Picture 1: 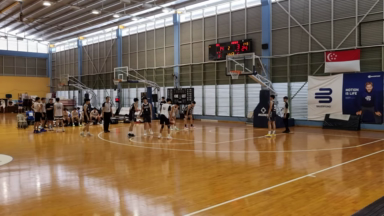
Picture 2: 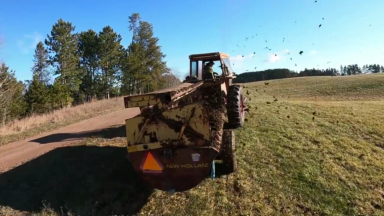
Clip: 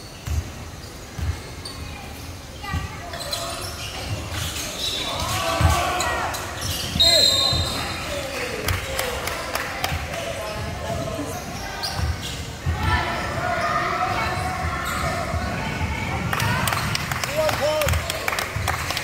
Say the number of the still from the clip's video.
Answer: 1